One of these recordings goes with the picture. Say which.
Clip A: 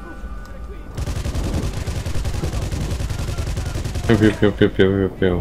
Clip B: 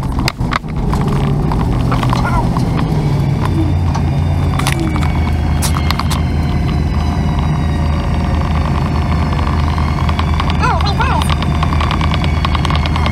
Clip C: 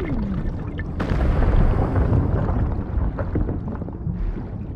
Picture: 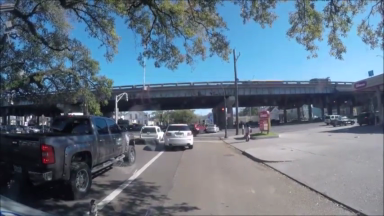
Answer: B